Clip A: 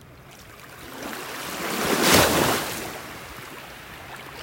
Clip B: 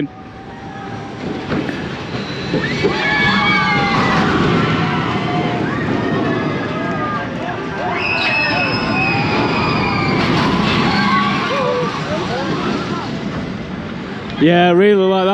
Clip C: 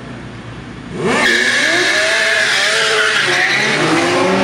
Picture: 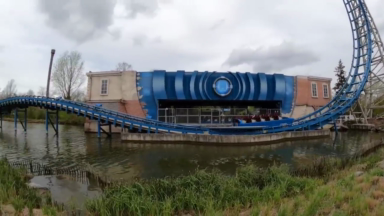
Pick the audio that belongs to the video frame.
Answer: B